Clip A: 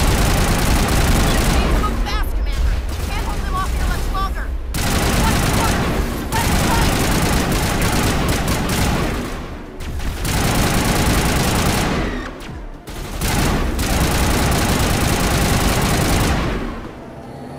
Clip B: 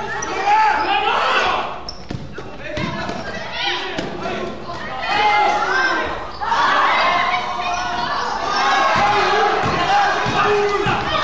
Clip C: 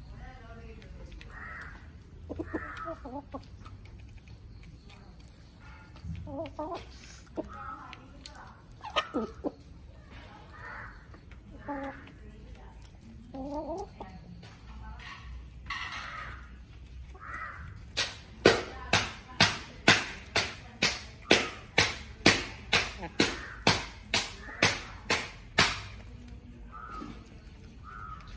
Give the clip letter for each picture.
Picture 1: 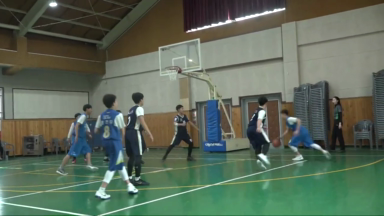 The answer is B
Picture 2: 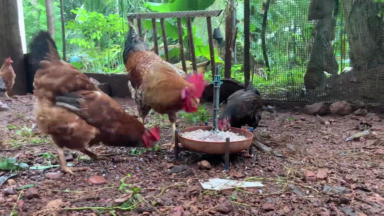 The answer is C